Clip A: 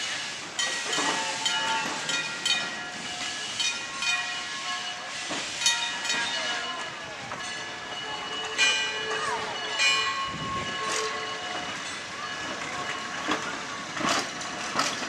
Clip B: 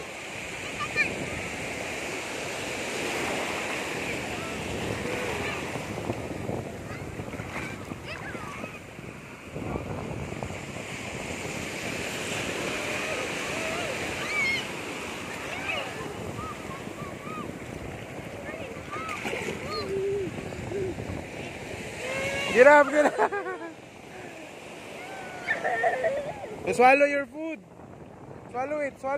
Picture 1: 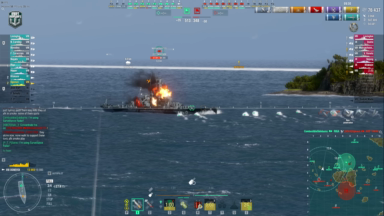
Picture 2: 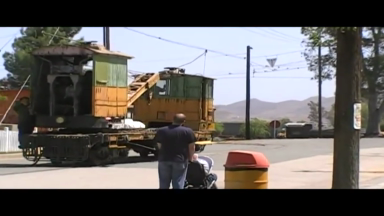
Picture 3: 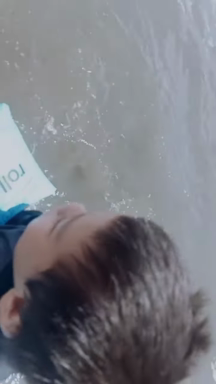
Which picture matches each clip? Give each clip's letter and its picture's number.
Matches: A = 2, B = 3